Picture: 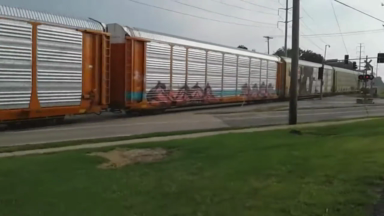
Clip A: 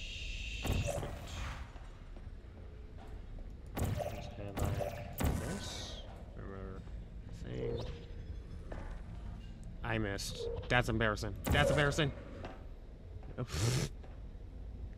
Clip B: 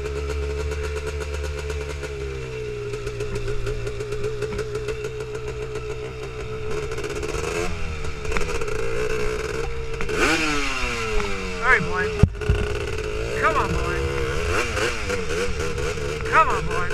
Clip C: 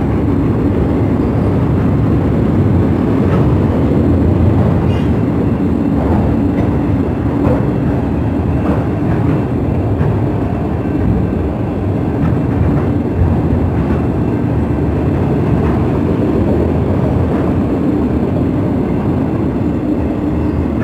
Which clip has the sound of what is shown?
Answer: C